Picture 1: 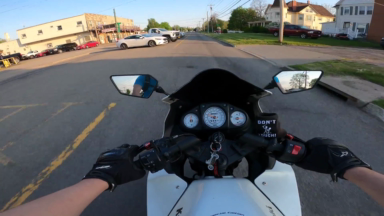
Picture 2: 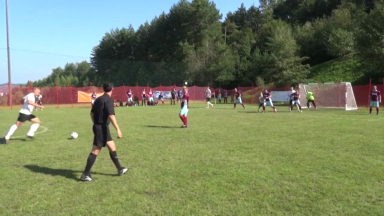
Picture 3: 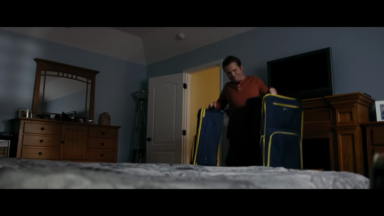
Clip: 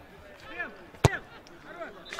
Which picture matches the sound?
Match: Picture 2